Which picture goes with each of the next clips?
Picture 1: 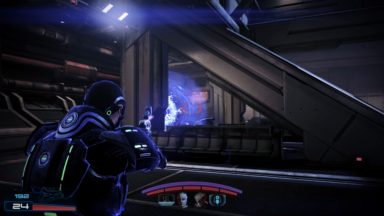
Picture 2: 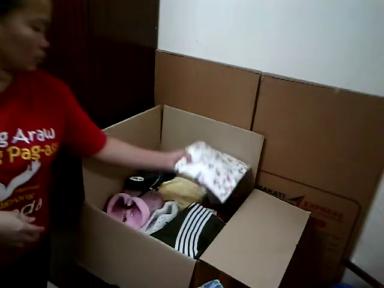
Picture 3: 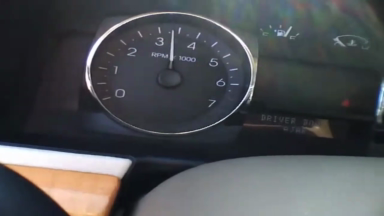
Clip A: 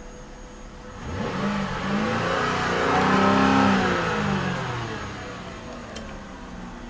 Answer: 3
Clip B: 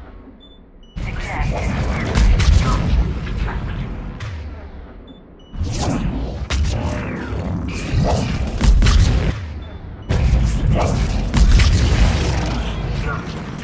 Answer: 1